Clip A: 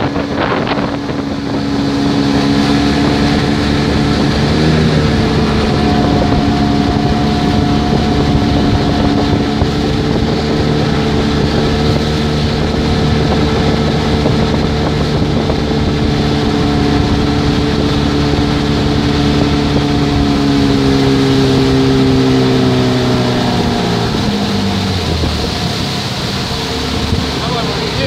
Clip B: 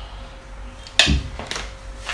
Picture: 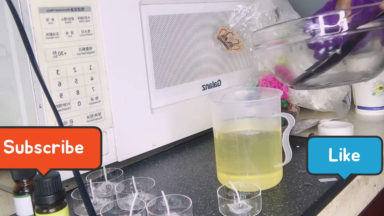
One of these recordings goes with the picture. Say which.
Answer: B